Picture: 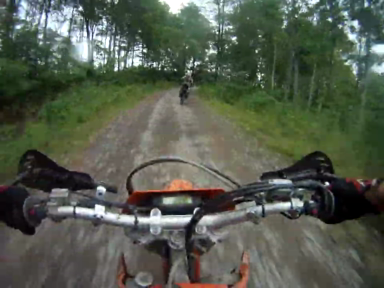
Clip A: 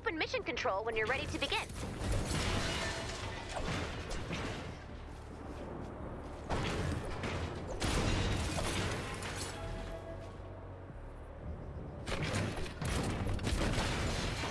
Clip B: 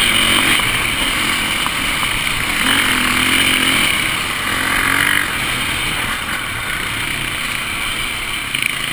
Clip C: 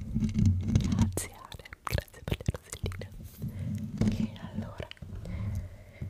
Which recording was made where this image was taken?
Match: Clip B